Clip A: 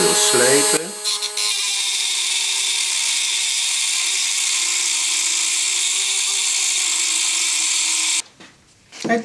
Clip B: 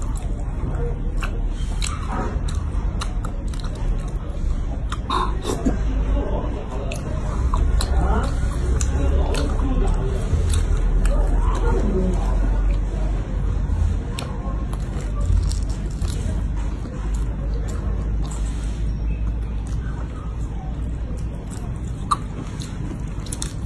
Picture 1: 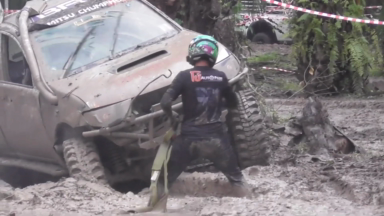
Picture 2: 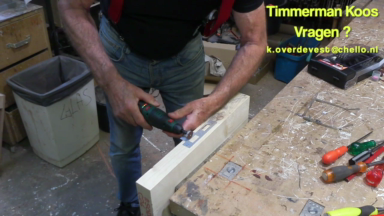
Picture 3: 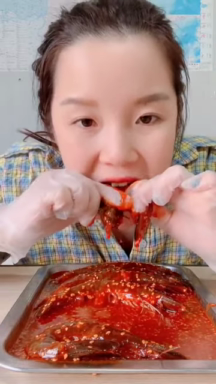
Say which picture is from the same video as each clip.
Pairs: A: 2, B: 3